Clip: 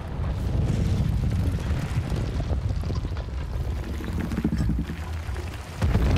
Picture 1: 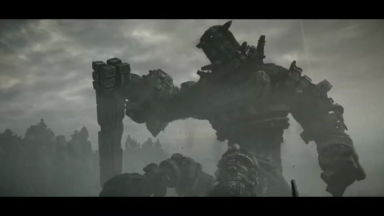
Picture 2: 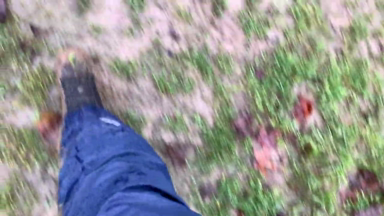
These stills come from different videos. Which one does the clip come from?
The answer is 1